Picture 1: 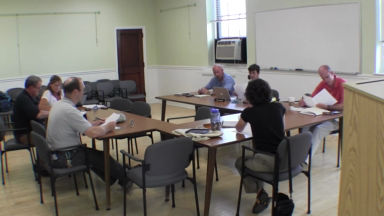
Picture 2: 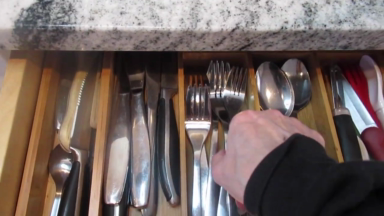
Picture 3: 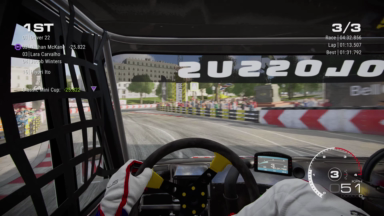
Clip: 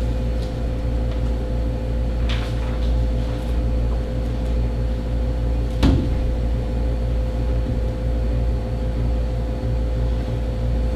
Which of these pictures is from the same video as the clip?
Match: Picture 1